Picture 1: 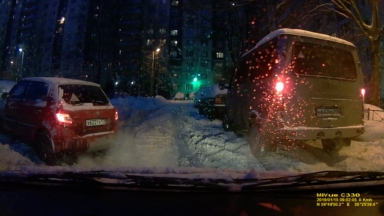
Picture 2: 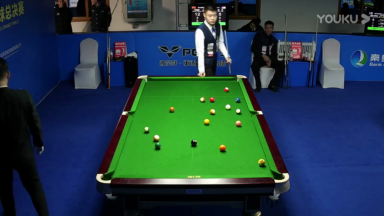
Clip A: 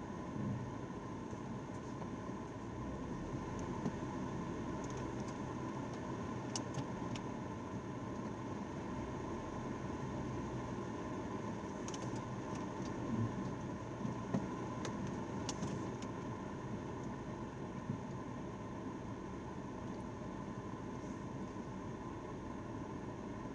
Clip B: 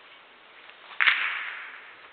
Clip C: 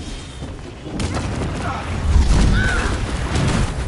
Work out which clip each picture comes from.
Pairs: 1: A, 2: B